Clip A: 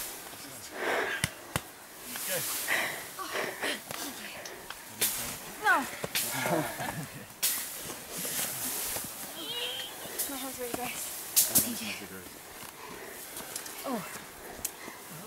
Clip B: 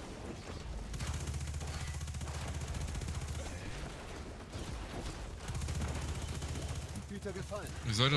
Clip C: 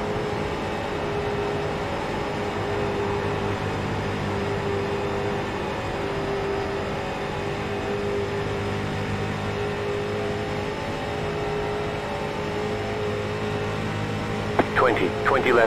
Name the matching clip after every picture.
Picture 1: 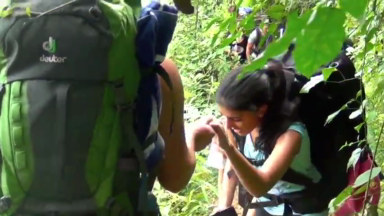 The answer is A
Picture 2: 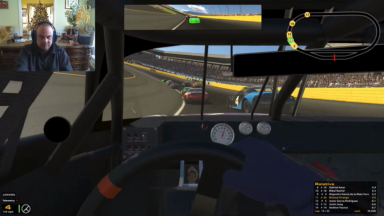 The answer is C